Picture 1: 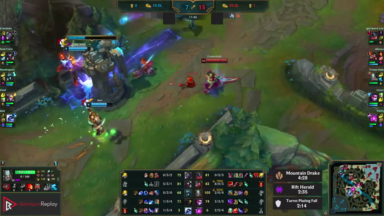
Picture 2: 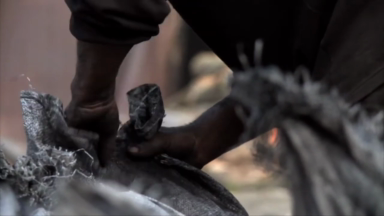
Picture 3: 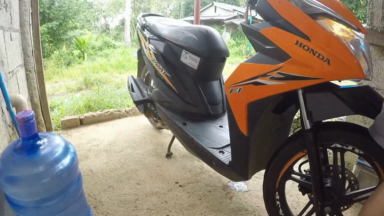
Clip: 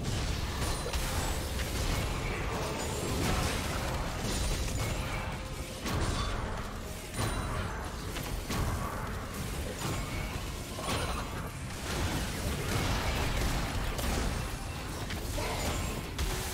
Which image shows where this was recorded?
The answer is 1